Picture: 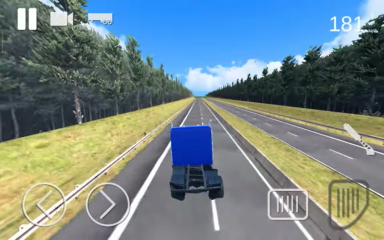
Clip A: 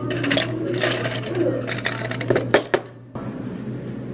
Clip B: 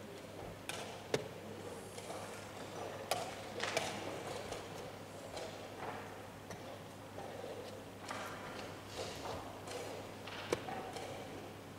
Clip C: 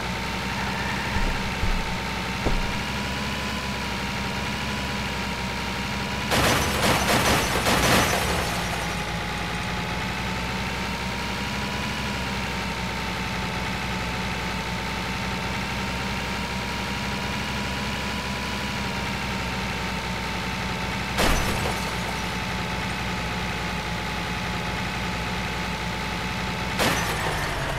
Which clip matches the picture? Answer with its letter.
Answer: C